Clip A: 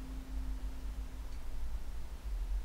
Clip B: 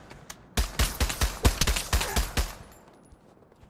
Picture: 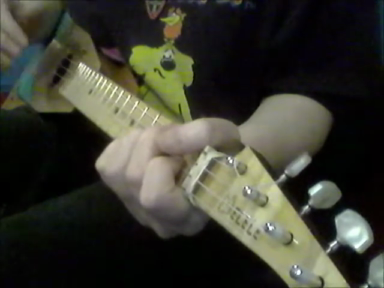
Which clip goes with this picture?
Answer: A